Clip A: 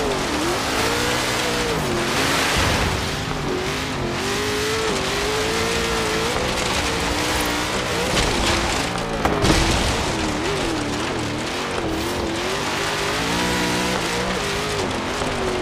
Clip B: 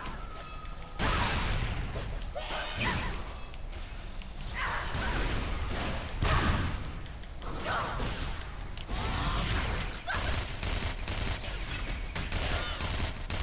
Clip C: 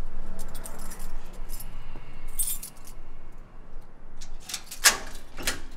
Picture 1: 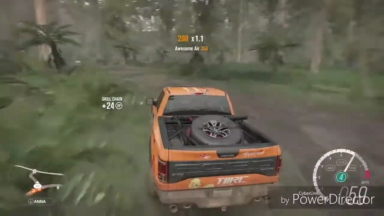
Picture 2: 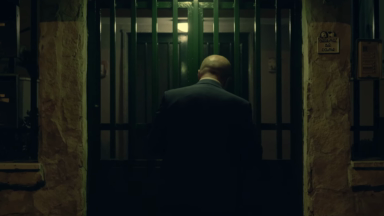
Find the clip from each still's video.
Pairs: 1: A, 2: C